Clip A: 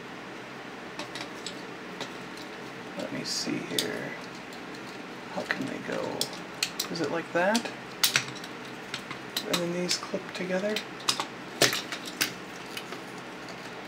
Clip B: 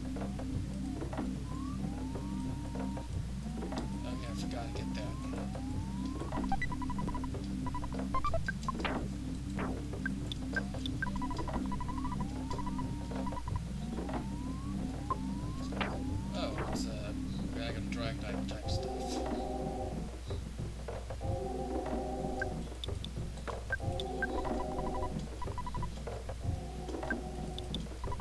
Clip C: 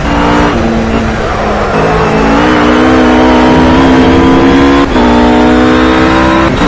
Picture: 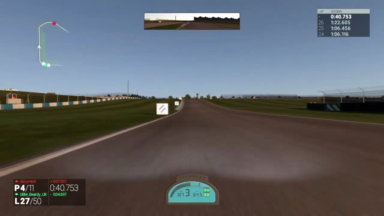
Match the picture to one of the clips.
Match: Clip C